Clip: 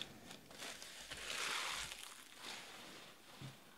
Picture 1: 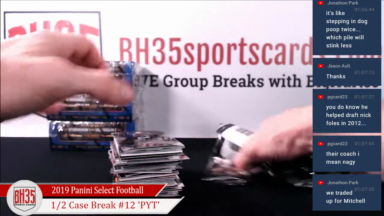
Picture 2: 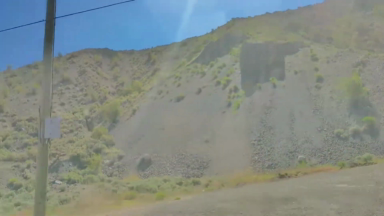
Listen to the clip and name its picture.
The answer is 1